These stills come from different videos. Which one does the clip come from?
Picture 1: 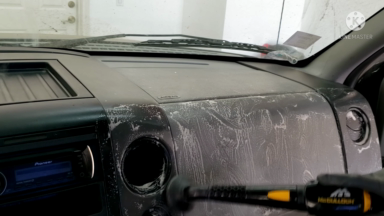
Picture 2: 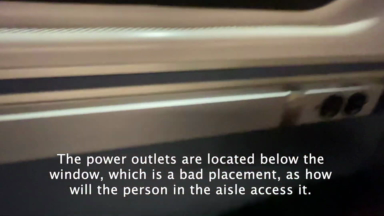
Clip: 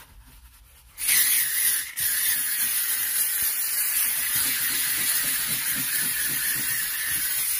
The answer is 1